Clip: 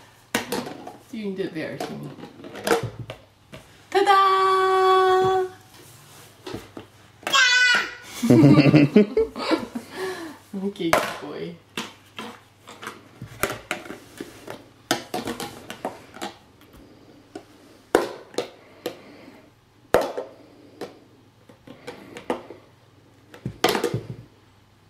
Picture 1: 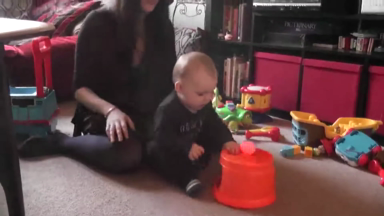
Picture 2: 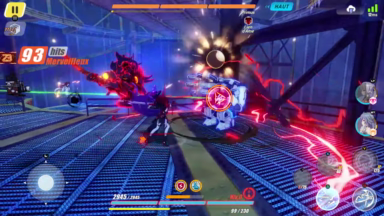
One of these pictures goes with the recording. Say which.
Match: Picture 1